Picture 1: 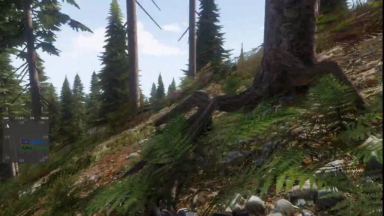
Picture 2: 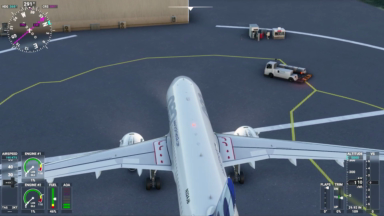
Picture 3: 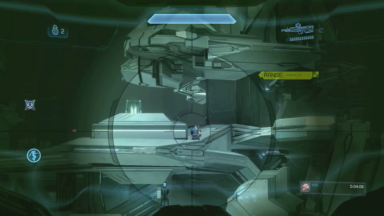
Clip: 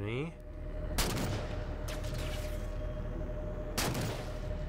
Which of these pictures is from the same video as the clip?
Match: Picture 3